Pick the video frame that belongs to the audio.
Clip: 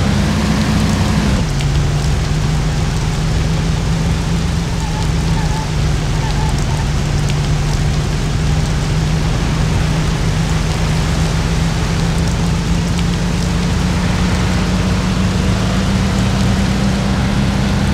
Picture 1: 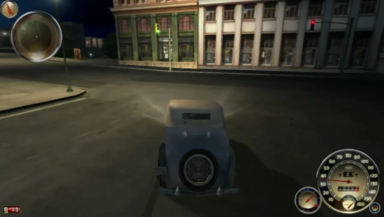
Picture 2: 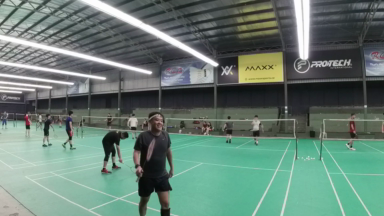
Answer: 1